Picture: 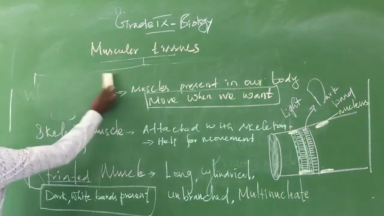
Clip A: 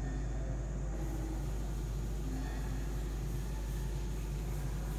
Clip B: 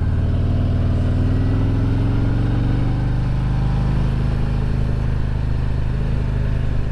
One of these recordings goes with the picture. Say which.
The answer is A